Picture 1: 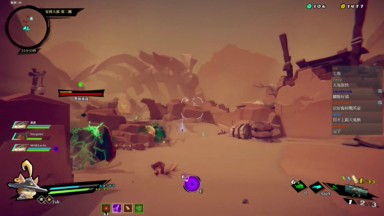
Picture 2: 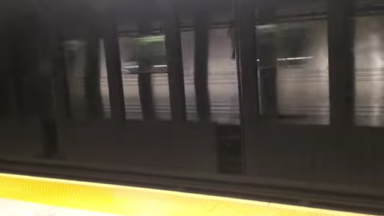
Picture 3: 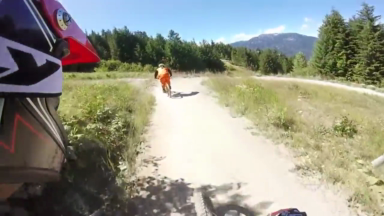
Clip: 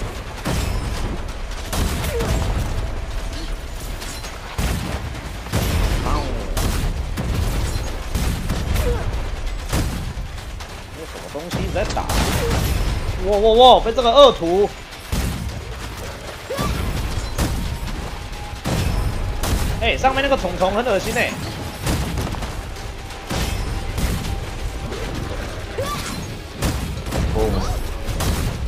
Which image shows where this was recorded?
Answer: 1